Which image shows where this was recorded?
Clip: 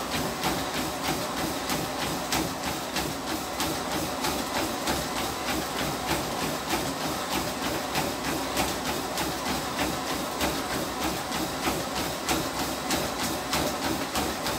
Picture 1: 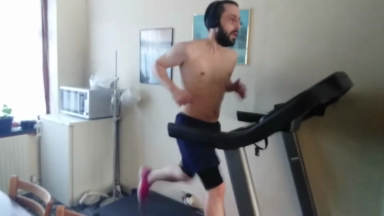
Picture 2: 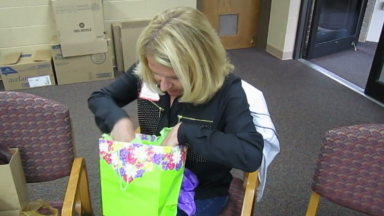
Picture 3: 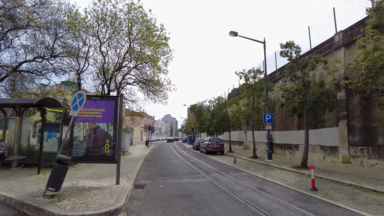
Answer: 1